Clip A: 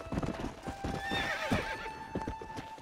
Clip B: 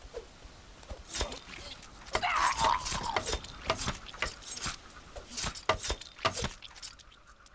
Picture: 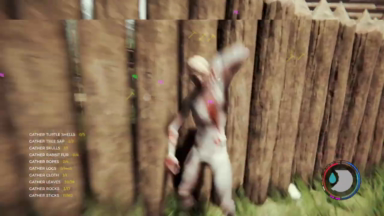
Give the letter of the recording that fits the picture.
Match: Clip B